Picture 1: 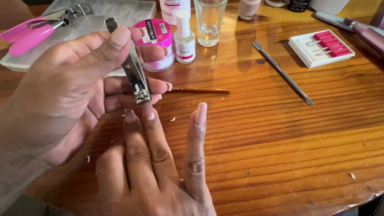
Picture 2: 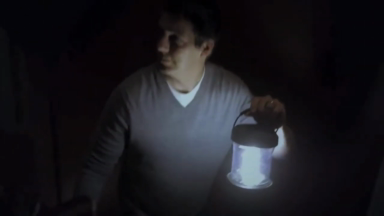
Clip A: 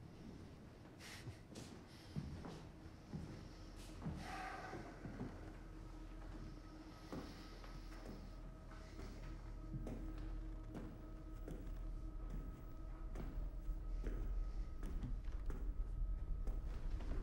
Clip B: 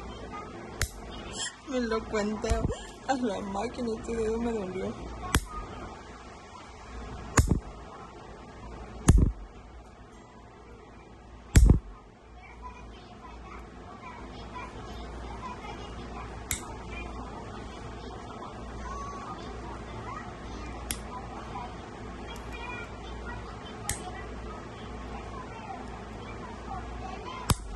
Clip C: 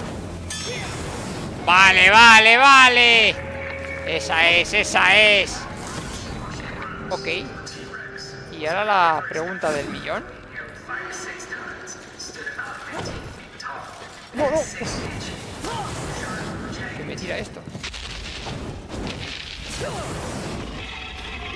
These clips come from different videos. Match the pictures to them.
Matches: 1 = B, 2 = A